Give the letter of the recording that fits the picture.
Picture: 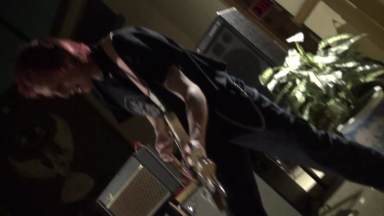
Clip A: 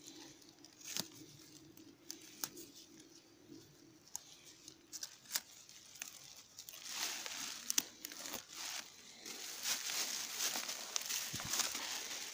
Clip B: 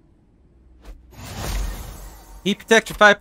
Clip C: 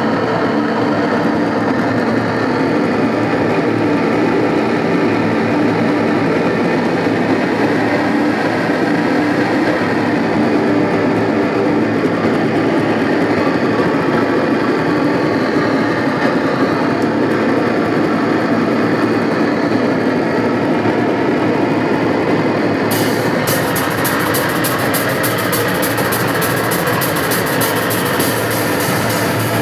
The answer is C